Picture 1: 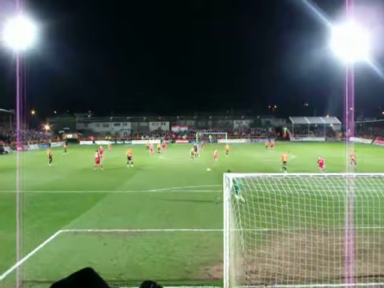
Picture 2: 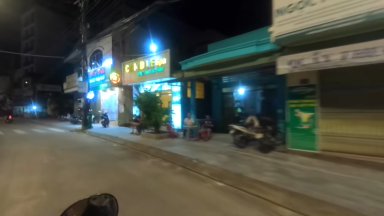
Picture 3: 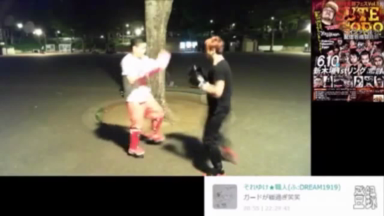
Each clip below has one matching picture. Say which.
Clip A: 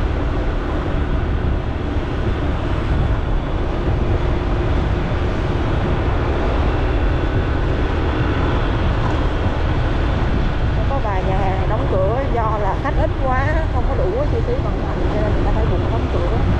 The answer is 2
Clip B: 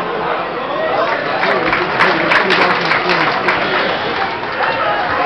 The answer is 1